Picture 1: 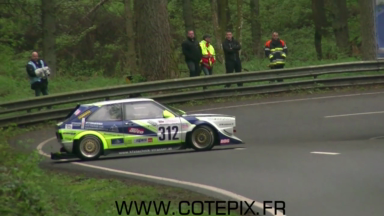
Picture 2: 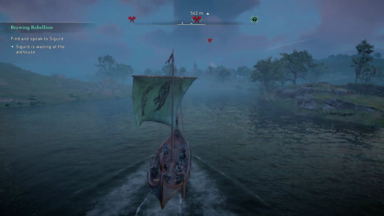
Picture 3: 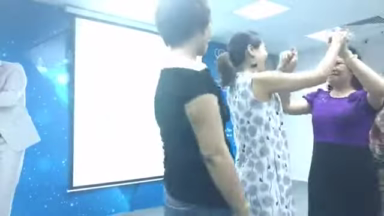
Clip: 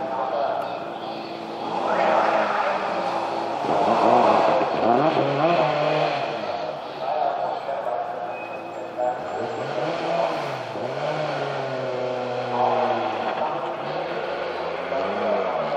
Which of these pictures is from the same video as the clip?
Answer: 1